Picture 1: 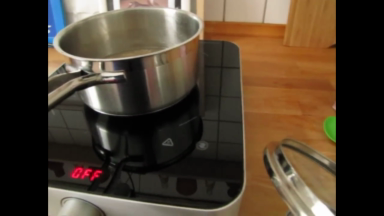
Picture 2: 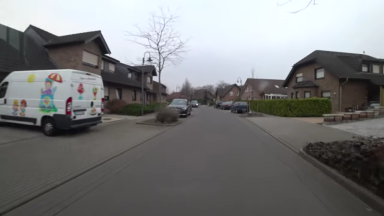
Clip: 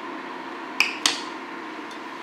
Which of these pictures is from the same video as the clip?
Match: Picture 1